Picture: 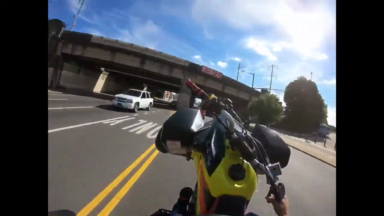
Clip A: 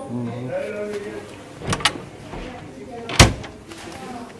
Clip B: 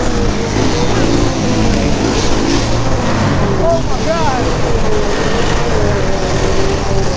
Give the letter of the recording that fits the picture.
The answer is B